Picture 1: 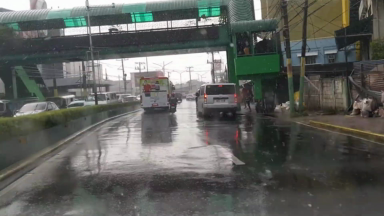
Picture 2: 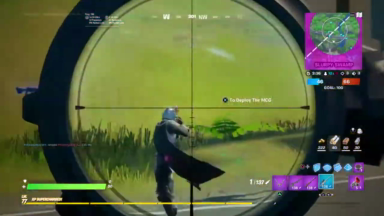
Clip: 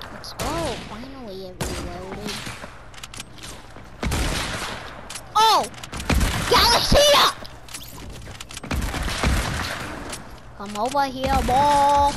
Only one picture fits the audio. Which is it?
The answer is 2